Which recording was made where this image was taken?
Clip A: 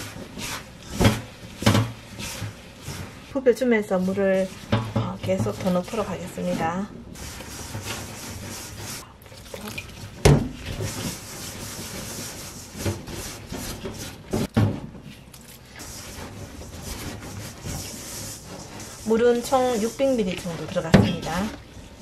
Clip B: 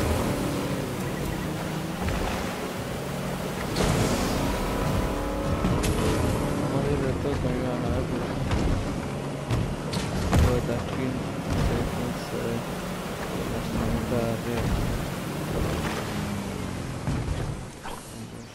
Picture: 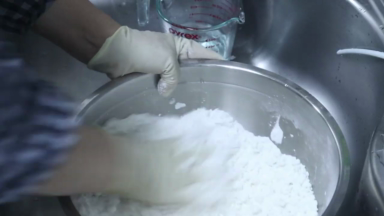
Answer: A